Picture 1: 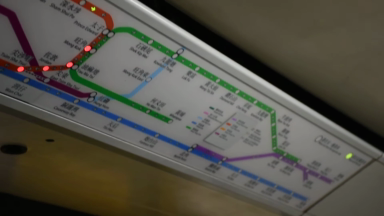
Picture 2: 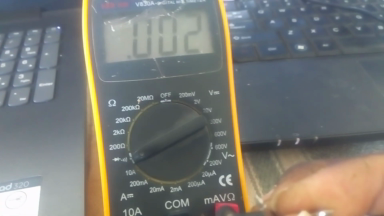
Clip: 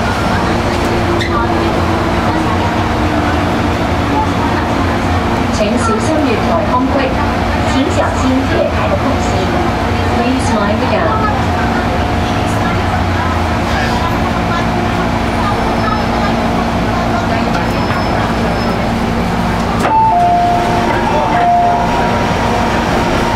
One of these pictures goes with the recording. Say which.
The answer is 1